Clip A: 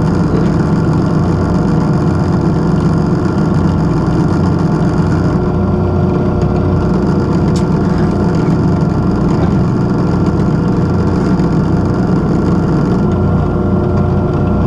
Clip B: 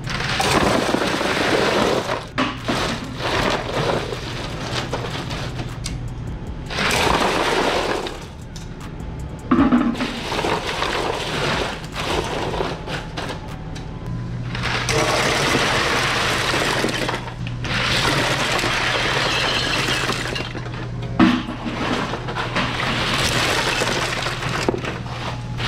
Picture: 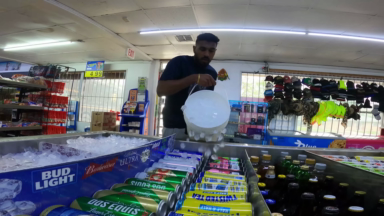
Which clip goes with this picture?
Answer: B